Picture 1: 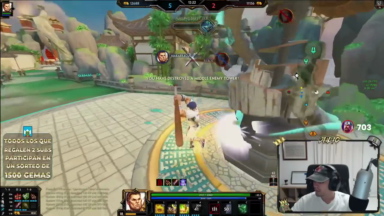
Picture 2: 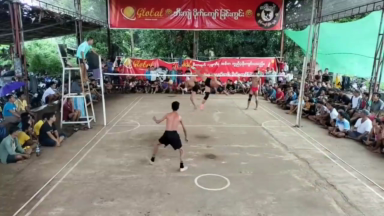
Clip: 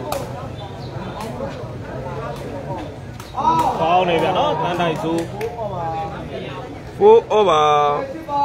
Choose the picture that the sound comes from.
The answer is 2